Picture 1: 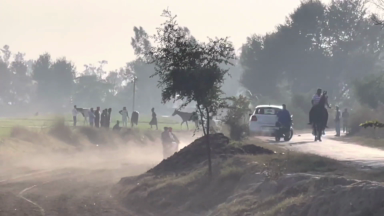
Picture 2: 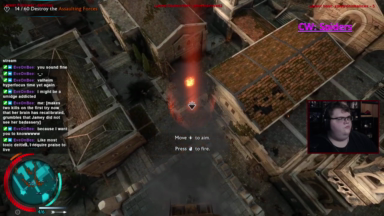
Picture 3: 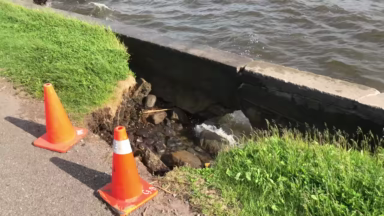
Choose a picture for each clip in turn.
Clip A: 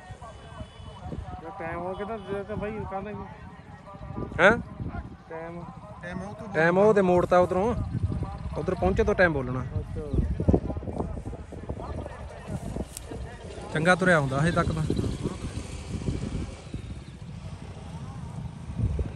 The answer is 1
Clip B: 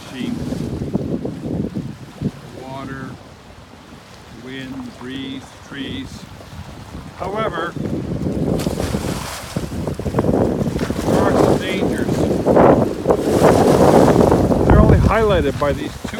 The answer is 3